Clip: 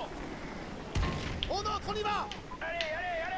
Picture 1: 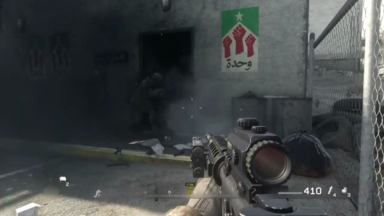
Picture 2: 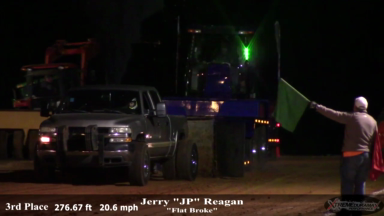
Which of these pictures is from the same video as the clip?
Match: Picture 1